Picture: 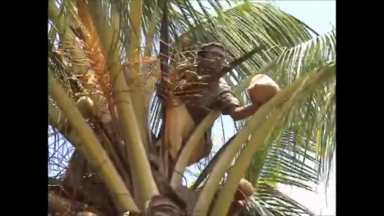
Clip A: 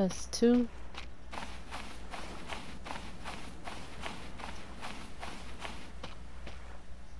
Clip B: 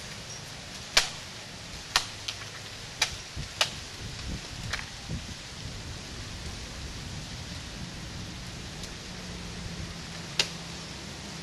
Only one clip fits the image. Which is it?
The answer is B